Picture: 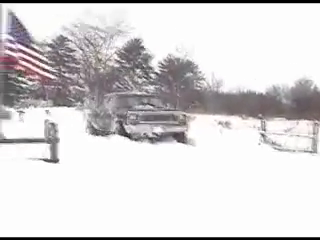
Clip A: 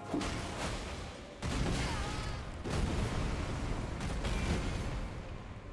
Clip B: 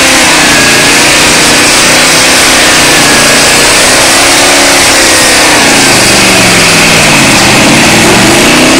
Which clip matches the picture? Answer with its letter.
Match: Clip B